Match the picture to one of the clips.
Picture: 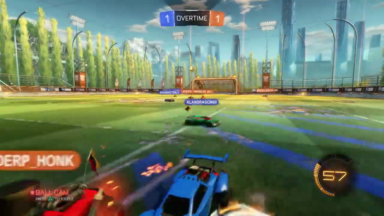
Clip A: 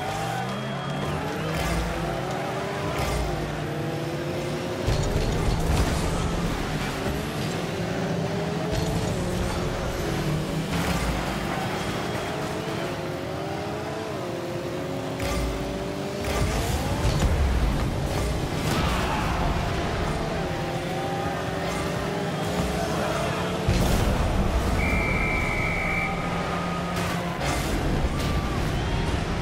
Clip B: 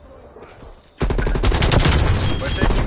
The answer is A